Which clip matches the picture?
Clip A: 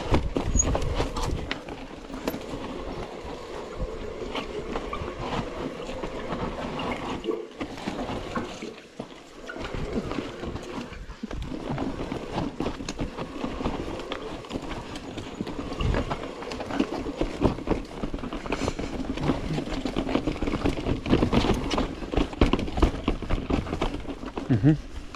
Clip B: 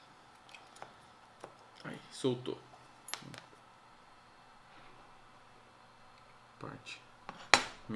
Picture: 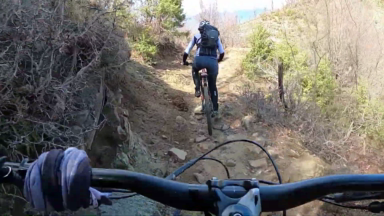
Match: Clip A